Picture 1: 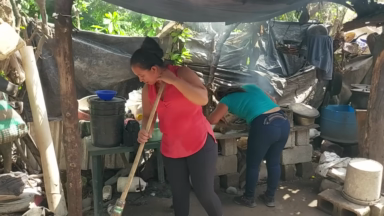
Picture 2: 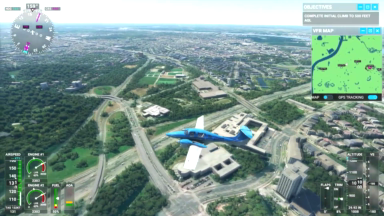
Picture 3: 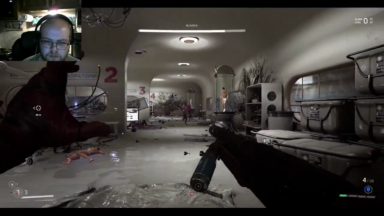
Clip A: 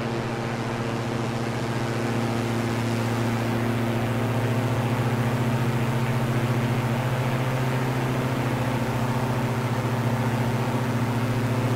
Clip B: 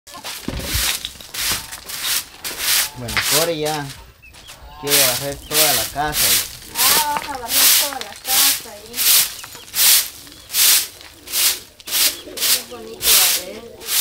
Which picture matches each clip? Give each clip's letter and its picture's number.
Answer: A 2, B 1